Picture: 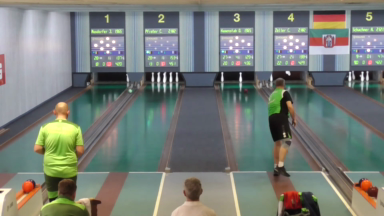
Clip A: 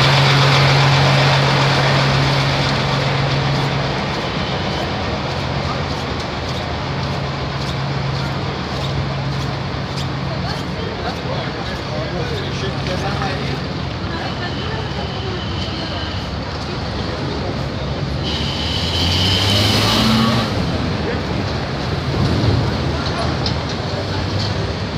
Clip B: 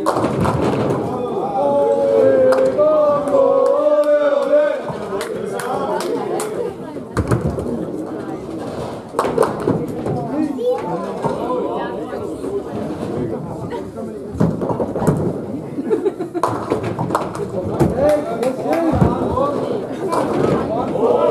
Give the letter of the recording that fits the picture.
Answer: B